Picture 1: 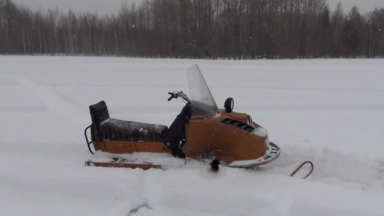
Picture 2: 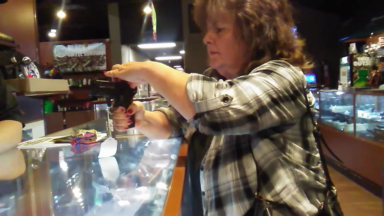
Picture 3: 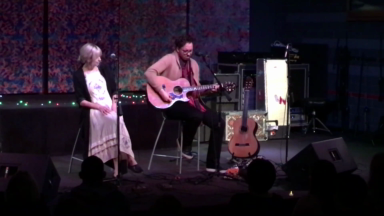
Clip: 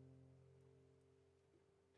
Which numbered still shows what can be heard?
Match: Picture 3